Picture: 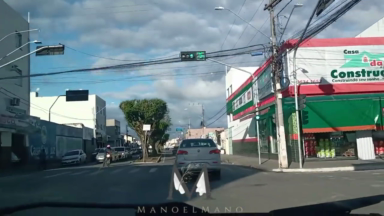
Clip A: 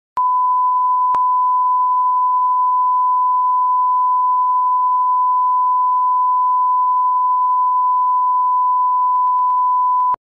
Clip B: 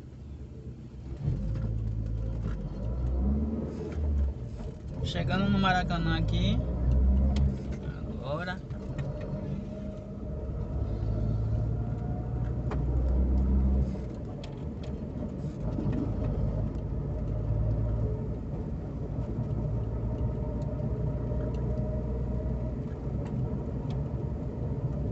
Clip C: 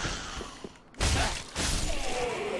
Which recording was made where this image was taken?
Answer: B